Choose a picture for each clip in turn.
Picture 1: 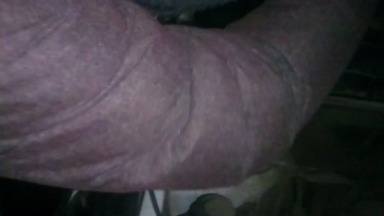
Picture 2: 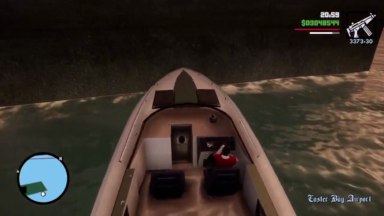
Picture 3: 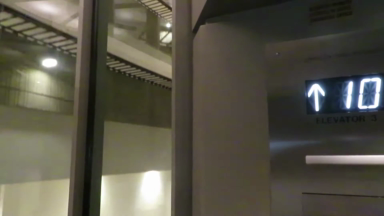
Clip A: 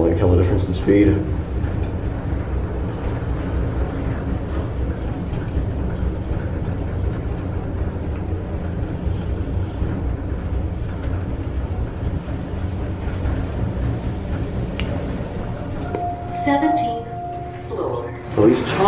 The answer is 3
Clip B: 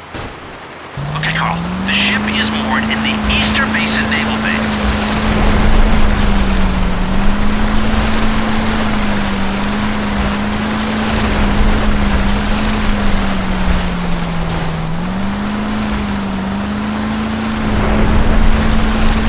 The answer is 2